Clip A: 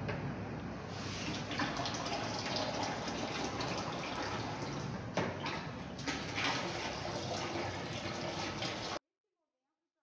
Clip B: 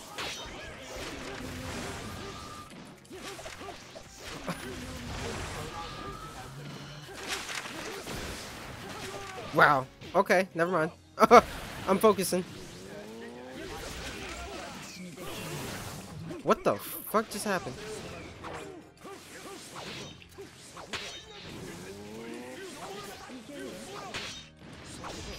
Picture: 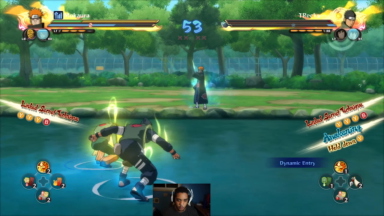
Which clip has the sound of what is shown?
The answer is B